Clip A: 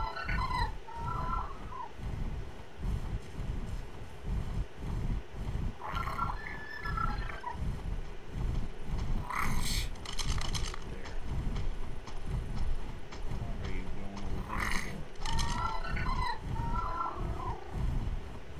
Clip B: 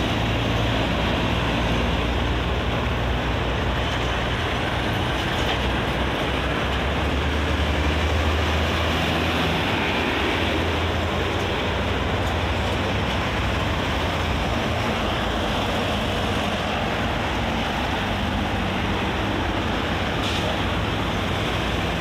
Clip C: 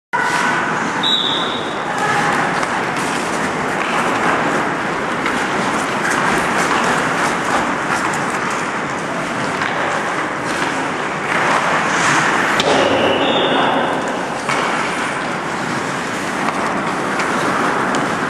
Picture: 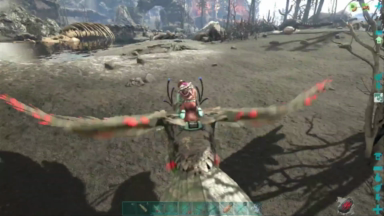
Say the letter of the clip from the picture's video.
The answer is A